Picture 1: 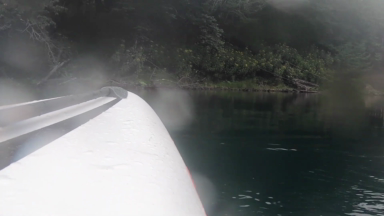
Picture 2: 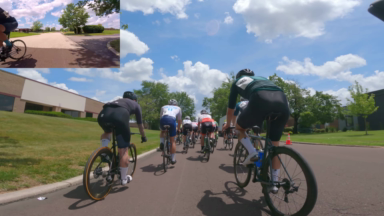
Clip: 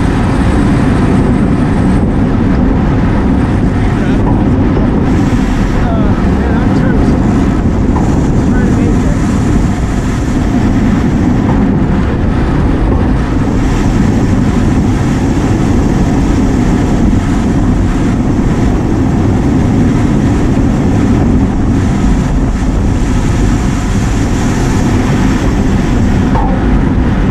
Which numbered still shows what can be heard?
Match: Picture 2